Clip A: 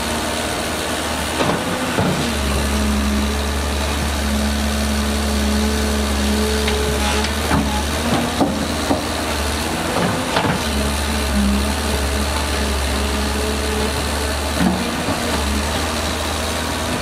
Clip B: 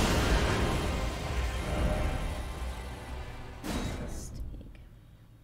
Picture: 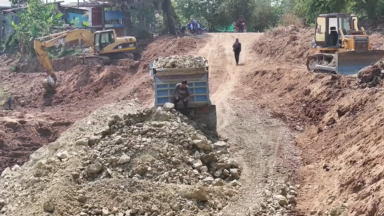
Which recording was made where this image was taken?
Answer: A